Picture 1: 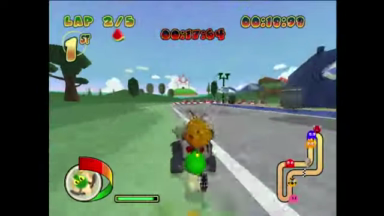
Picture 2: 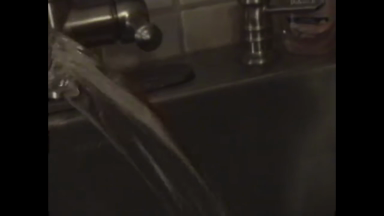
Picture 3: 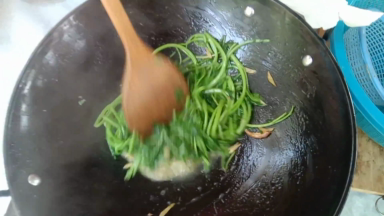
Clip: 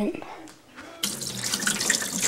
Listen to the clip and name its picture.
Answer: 2